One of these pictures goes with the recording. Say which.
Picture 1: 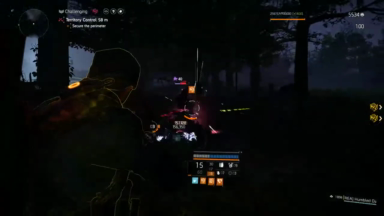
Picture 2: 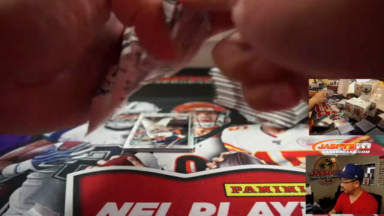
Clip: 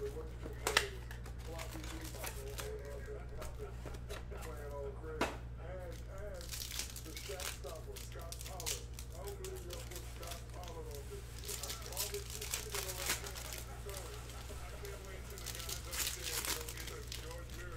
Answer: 2